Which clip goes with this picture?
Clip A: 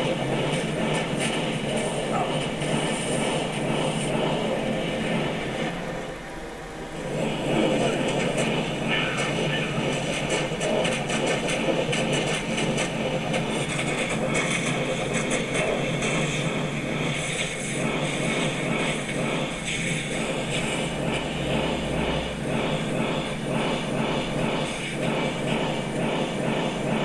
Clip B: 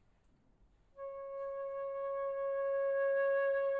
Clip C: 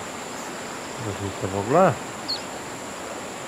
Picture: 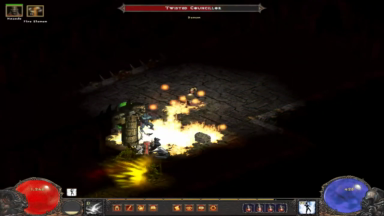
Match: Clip A